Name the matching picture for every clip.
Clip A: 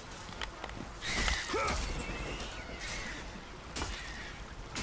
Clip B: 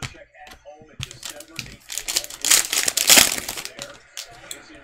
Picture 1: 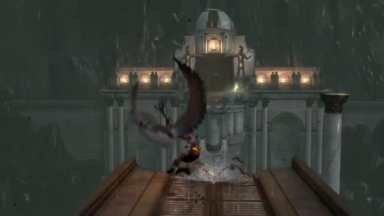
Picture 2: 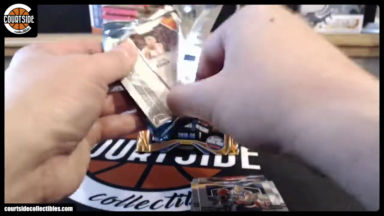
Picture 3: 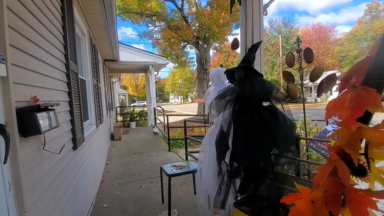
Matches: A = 1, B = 2